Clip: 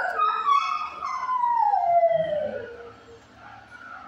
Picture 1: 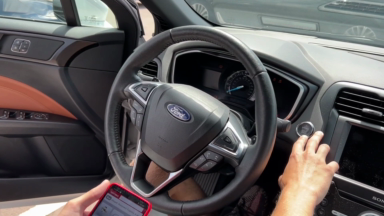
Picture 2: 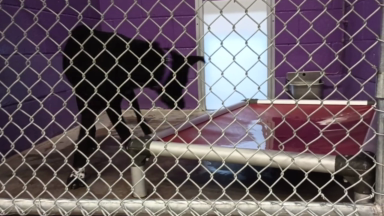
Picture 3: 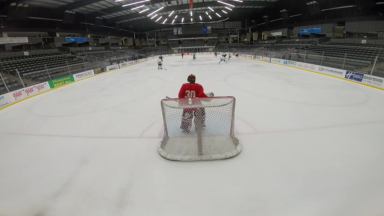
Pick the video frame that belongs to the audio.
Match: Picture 2